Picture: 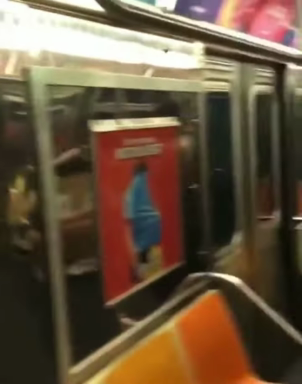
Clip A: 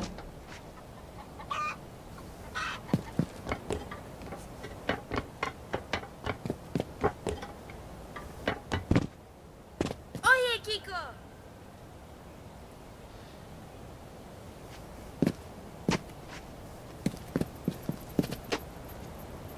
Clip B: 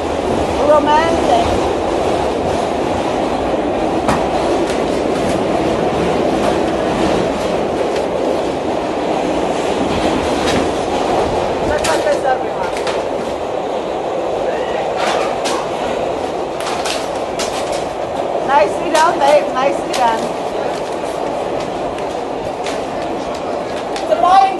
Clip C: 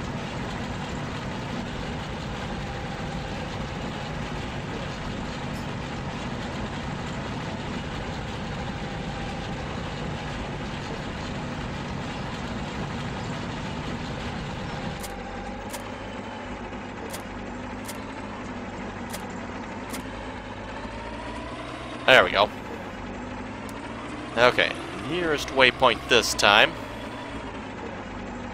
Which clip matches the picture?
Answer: B